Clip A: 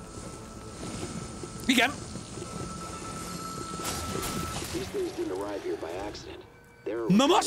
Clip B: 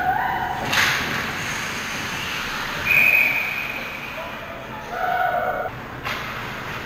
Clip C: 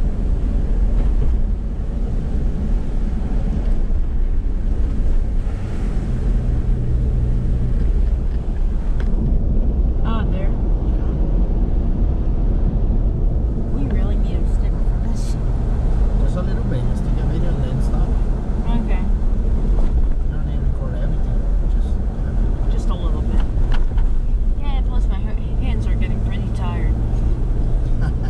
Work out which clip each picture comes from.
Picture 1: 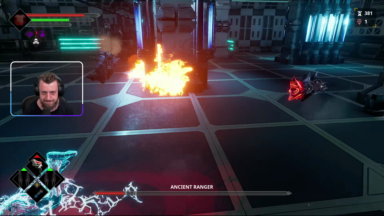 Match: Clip A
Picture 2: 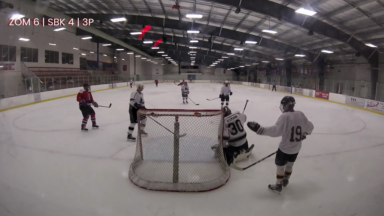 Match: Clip B